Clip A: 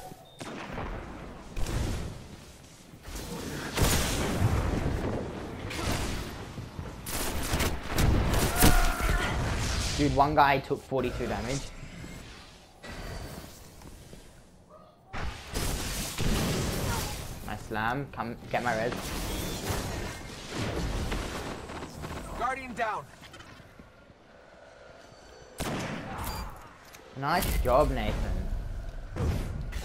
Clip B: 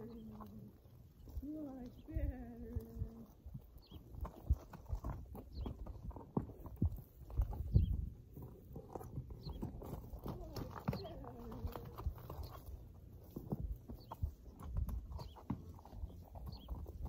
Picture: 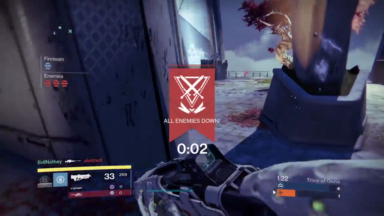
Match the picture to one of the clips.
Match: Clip A